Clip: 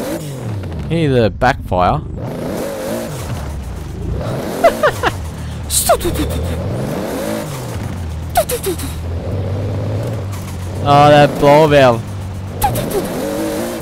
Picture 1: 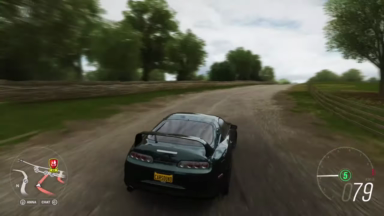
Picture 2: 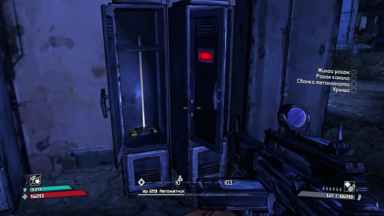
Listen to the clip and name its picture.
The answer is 1